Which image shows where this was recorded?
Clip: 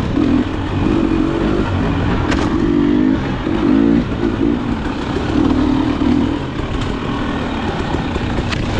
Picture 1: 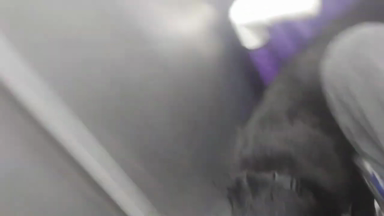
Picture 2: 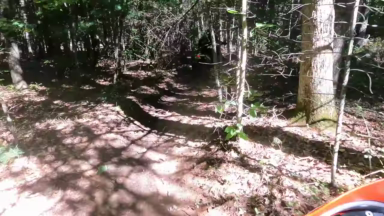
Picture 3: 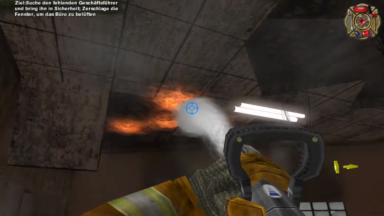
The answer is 2